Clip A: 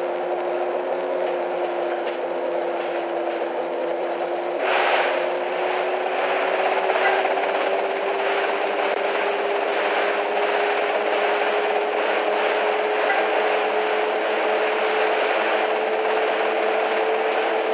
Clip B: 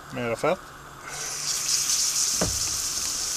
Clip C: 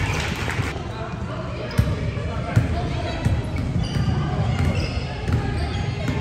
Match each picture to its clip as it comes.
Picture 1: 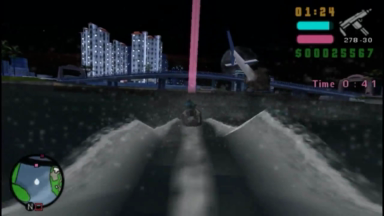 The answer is A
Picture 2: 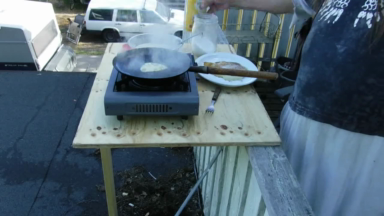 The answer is B